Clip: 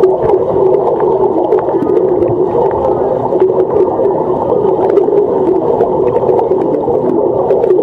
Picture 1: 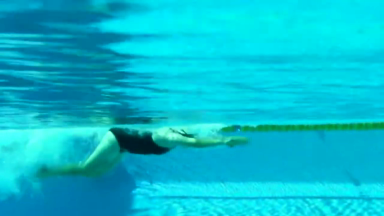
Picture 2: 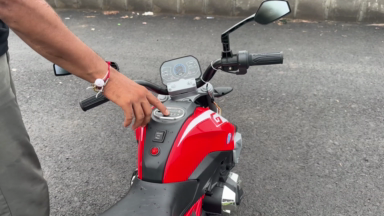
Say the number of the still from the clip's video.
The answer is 1